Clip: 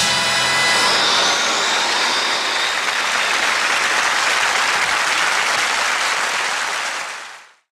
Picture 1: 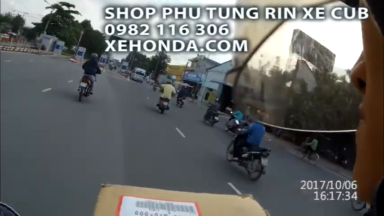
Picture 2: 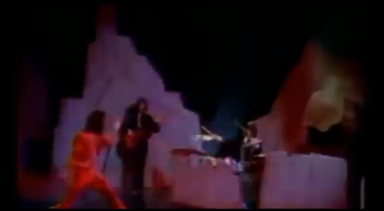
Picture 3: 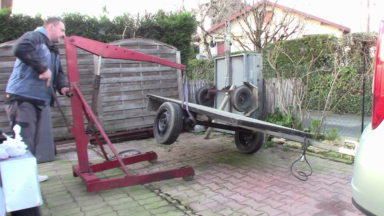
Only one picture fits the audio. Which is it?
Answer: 2